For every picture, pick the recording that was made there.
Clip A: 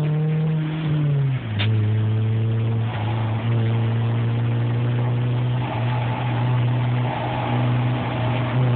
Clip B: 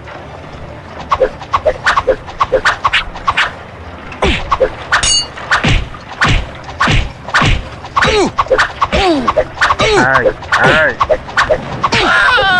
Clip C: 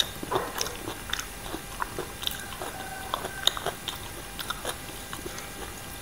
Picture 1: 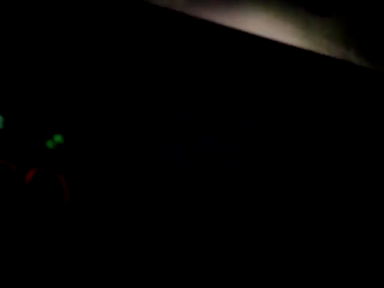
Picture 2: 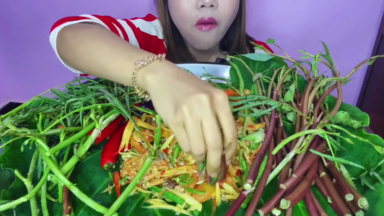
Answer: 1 A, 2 C